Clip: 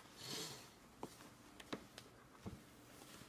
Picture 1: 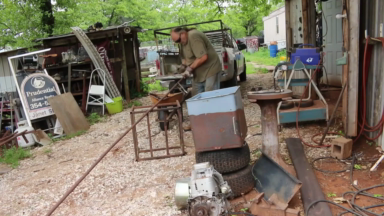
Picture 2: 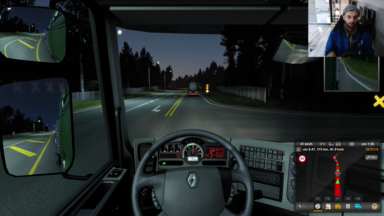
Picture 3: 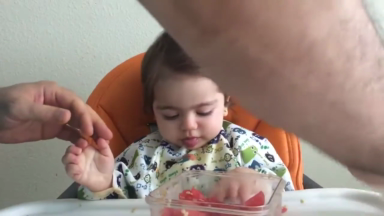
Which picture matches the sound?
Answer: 3